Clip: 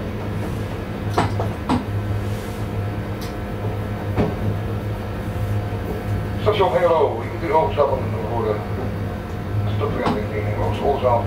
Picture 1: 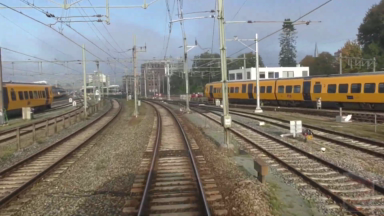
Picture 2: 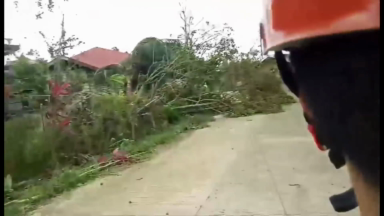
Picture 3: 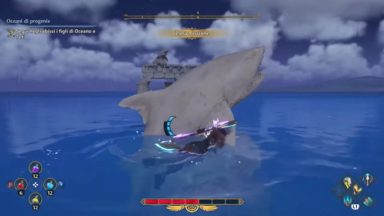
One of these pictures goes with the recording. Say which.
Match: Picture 1